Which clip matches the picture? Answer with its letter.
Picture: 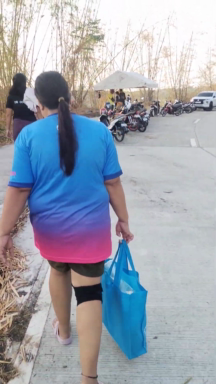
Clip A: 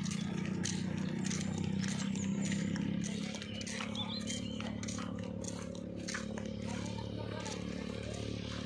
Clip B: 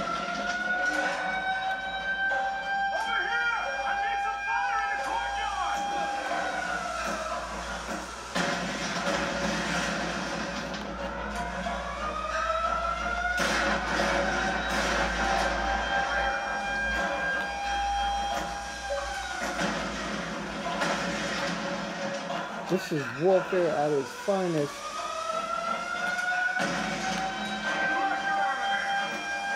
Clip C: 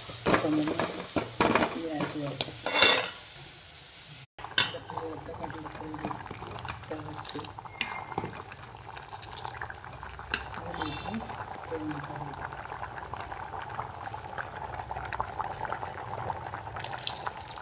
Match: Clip A